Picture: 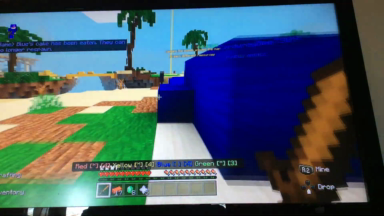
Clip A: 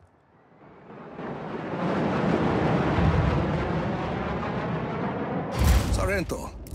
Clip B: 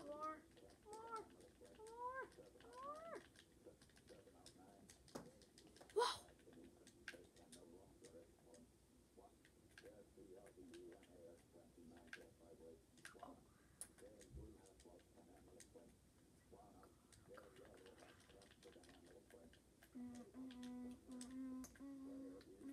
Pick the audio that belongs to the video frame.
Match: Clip B